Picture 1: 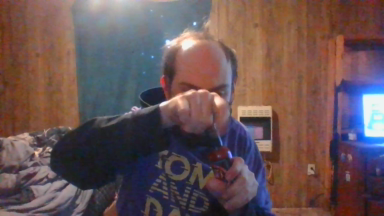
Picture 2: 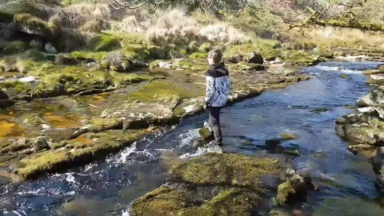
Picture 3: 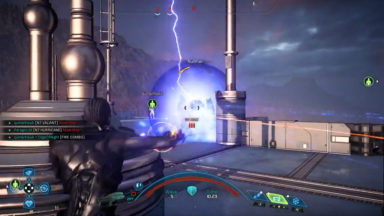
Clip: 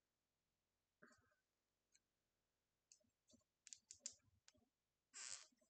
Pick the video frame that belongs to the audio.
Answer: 1